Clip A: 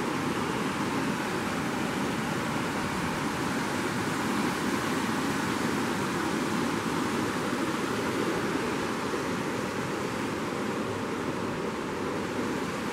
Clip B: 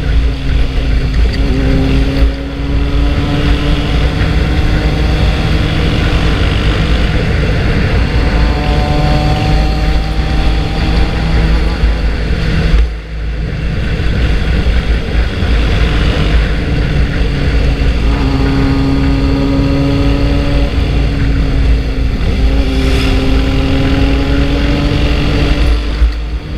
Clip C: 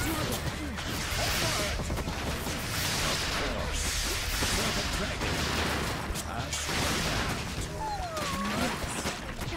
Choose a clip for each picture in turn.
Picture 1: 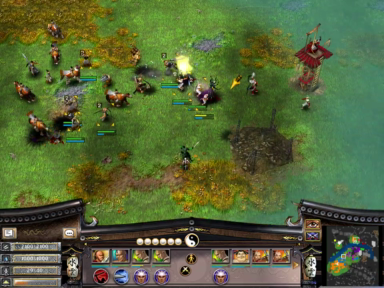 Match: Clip C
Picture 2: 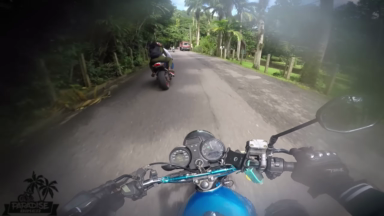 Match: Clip B